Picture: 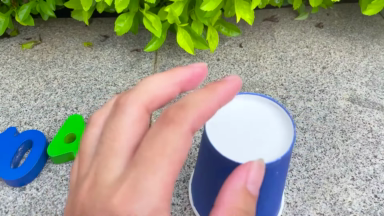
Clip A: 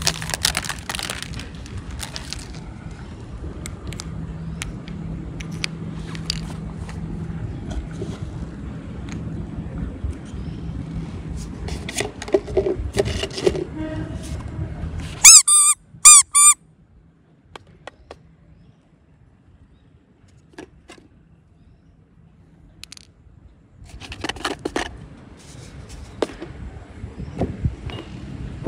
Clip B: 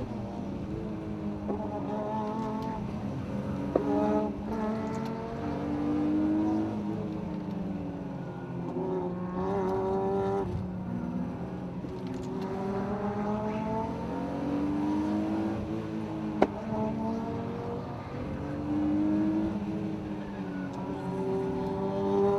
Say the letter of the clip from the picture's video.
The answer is A